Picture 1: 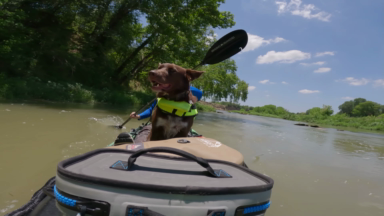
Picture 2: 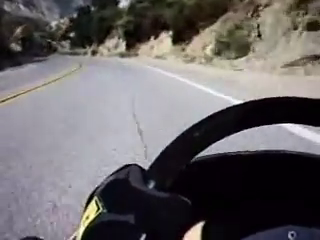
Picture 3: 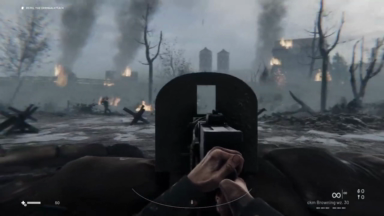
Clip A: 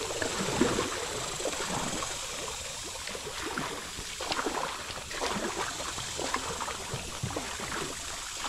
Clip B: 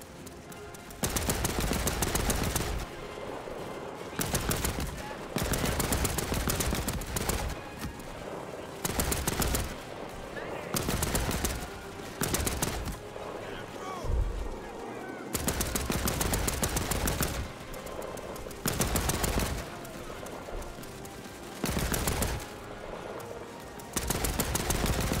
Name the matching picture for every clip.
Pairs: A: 1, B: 3